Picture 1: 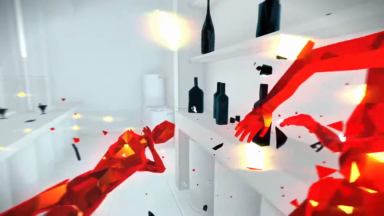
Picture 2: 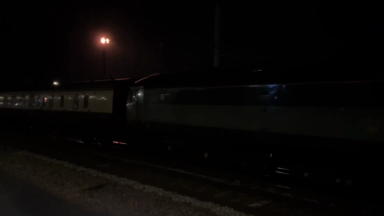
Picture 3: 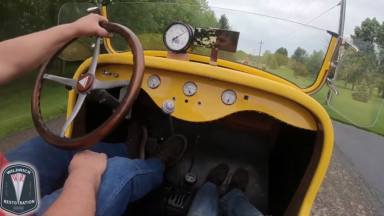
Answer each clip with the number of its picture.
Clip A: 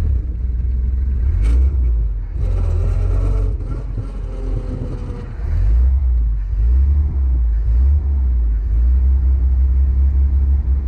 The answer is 3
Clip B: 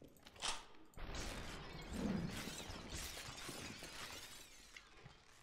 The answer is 1